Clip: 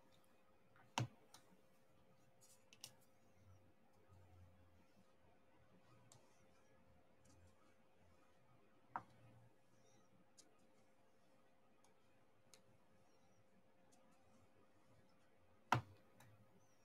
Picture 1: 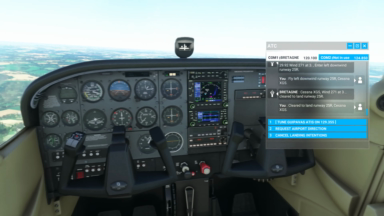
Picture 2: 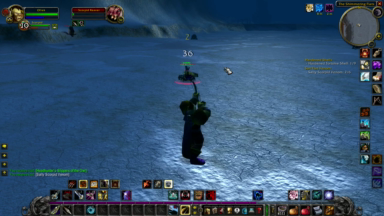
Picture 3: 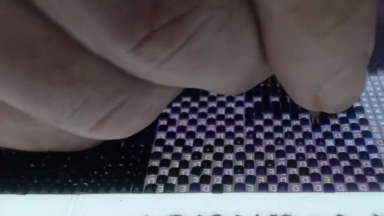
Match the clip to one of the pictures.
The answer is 3